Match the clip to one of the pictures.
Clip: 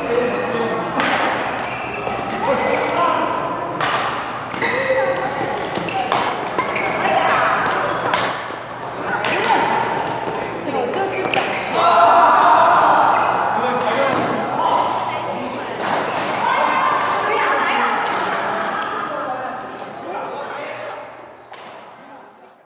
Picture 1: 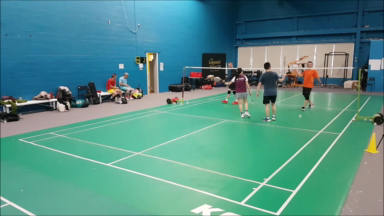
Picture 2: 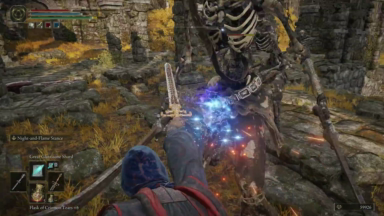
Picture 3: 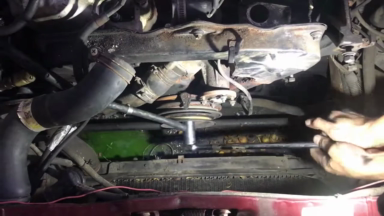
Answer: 1